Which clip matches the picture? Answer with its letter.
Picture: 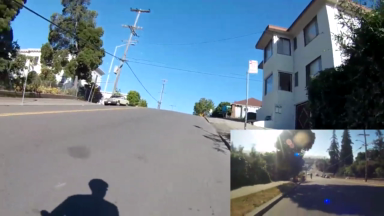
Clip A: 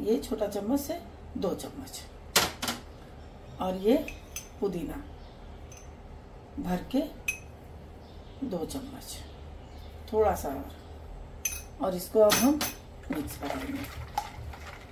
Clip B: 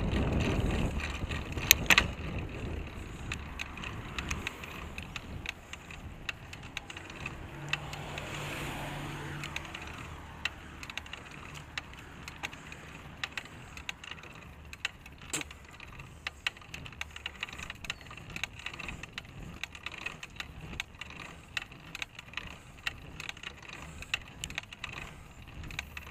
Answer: B